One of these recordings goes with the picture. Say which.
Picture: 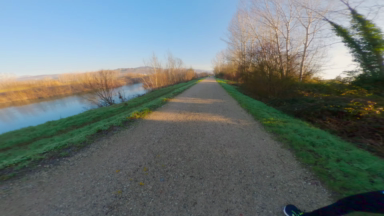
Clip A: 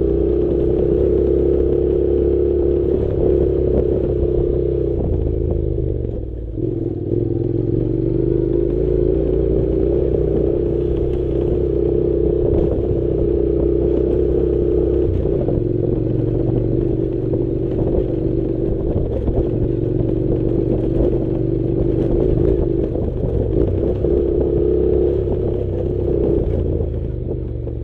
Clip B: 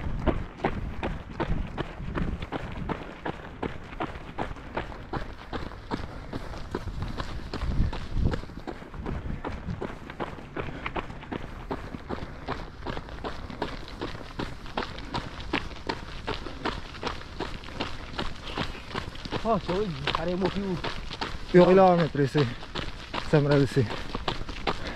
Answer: B